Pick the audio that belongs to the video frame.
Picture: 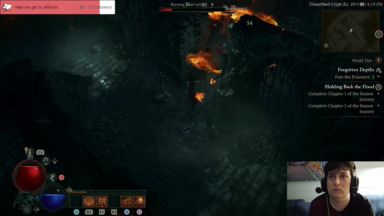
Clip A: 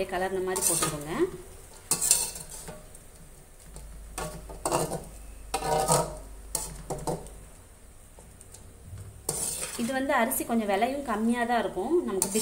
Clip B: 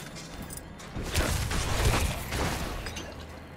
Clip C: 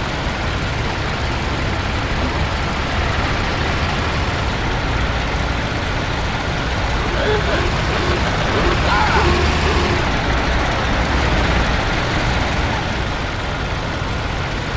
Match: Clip B